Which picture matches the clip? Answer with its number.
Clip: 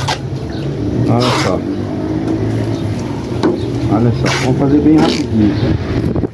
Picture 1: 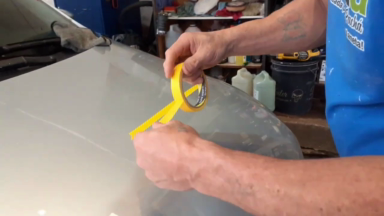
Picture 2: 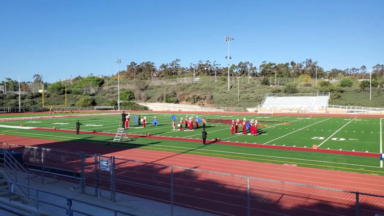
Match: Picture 1